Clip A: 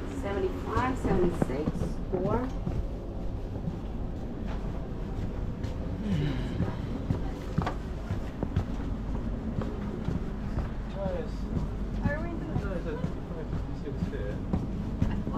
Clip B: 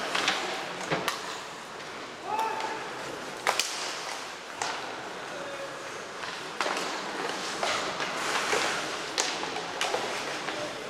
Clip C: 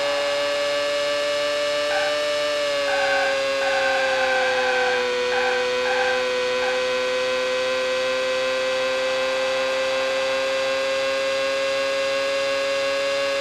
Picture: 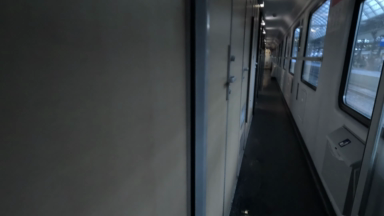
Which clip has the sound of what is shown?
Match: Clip A